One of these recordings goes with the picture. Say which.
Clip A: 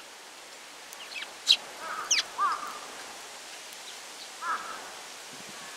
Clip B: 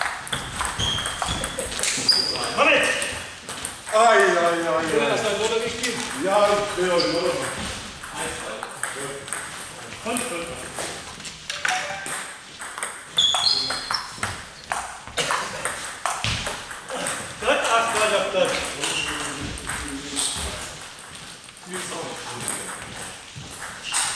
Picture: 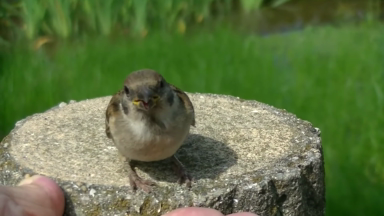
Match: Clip A